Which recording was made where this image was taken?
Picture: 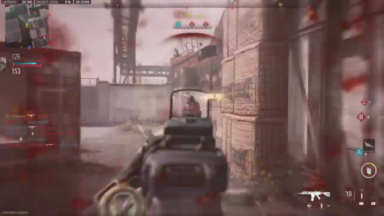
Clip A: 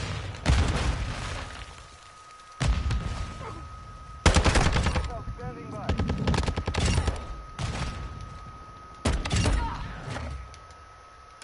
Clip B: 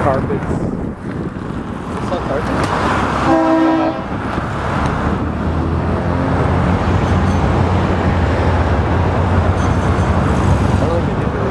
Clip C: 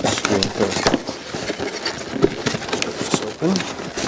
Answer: A